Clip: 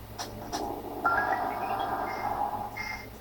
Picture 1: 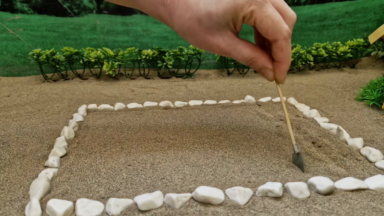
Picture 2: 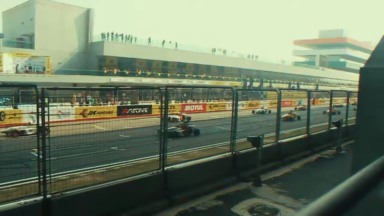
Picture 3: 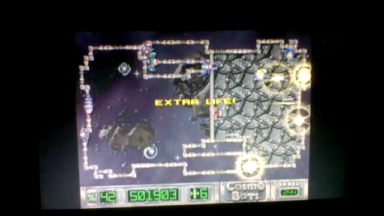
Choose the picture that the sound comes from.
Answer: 3